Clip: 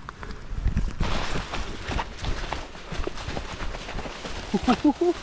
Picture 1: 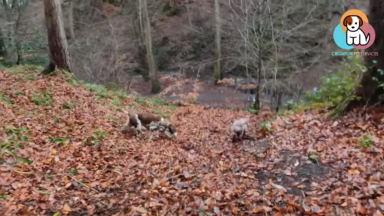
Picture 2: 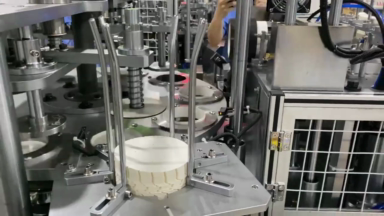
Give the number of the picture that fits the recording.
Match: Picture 1